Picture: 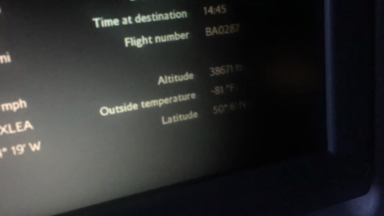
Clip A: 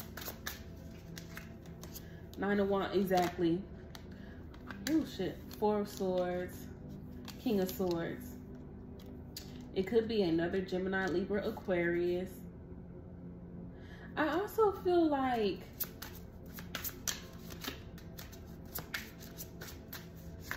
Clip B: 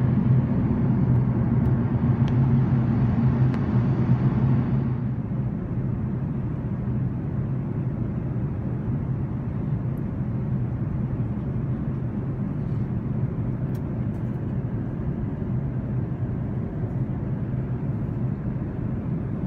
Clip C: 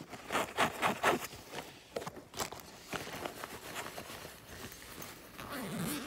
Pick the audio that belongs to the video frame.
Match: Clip B